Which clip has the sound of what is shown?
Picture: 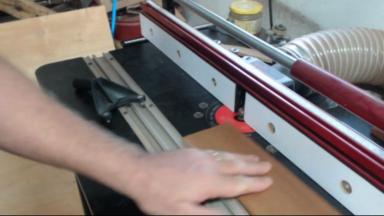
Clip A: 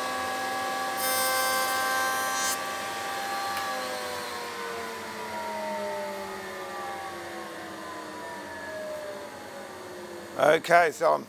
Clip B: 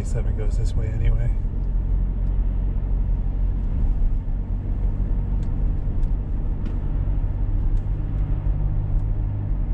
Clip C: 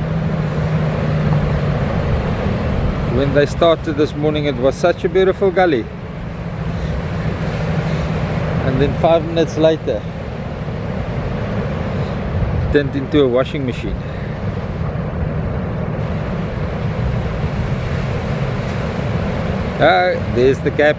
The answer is A